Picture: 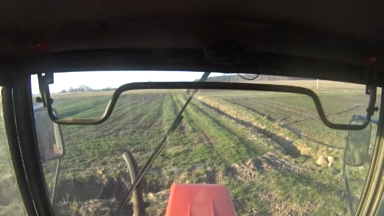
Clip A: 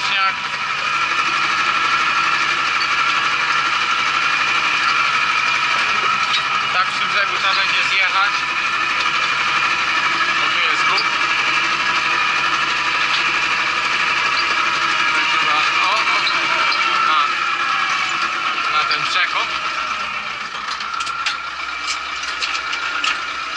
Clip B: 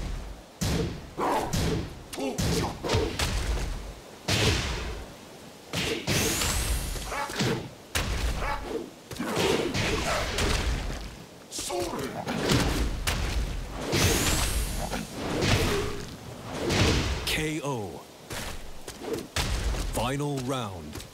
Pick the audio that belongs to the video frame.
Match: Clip A